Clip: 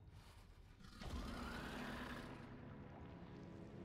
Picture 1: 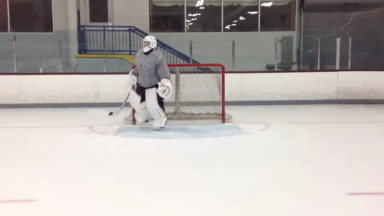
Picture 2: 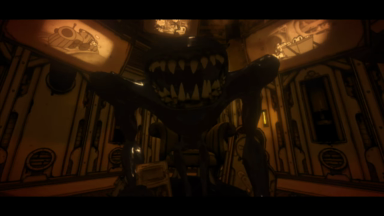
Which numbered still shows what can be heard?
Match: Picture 2